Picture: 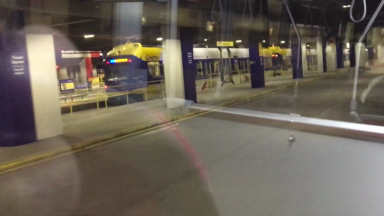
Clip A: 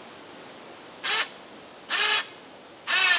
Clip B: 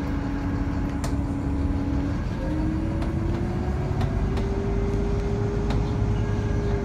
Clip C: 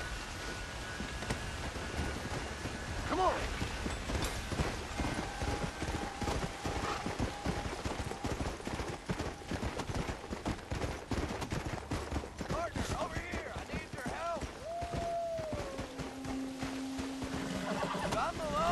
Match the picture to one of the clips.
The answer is B